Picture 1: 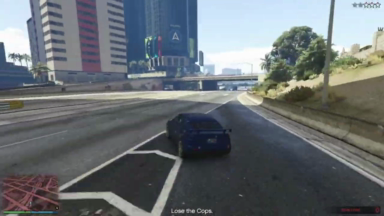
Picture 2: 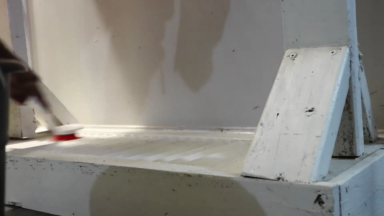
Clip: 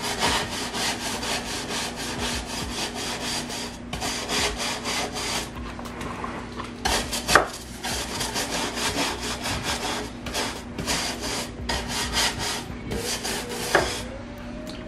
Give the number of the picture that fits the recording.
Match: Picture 2